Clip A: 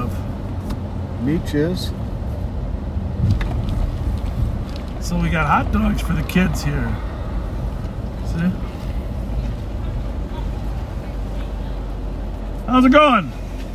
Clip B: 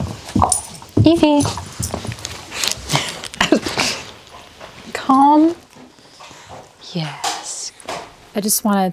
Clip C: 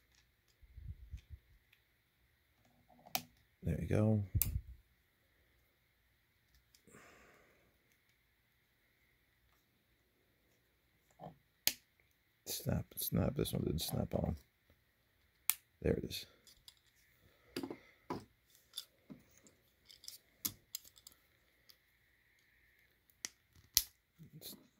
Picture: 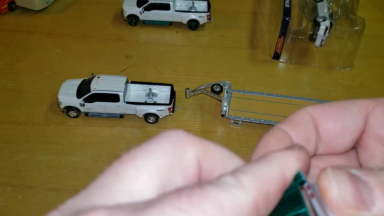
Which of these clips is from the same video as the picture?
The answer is C